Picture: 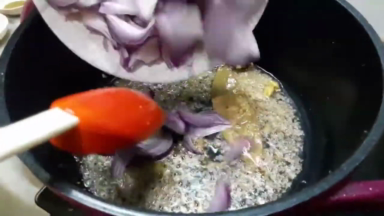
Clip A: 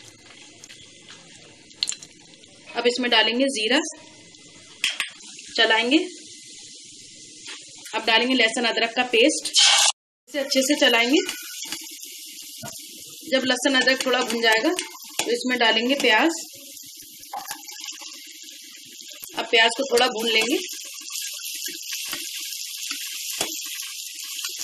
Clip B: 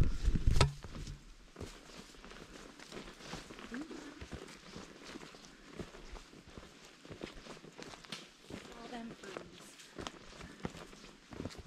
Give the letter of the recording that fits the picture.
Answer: A